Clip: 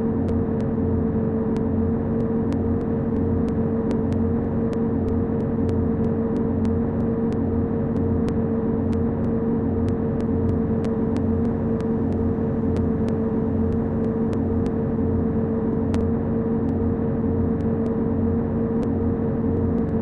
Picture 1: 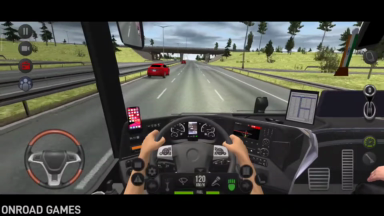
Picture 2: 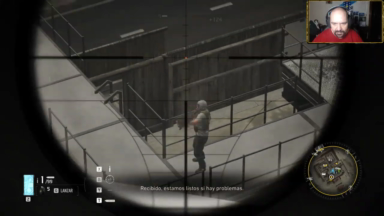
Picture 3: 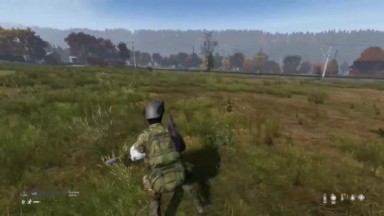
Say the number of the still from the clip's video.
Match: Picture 1